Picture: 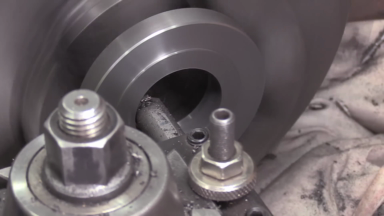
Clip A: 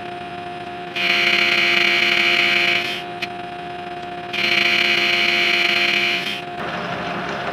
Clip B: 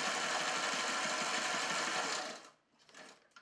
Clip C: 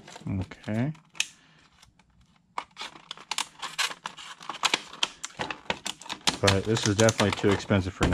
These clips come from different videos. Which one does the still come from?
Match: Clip A